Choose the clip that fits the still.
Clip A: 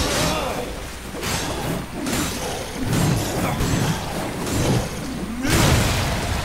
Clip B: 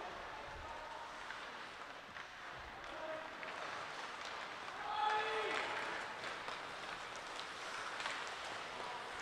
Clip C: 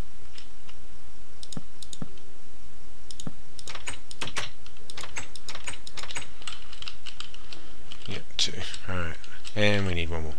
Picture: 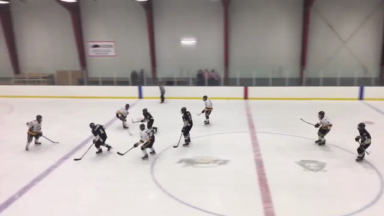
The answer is B